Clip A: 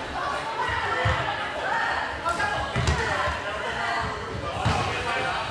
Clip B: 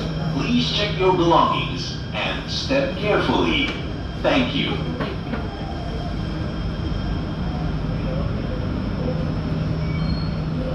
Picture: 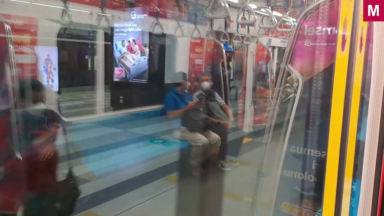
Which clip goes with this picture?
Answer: B